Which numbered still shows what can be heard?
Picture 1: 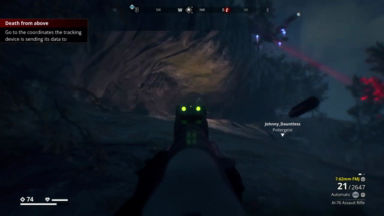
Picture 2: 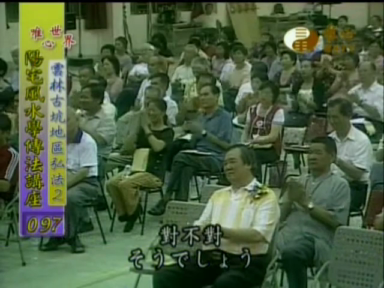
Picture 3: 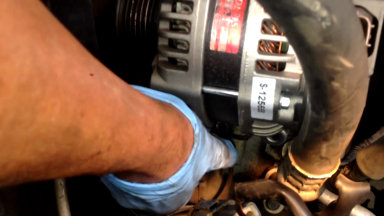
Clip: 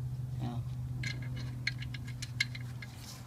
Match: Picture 3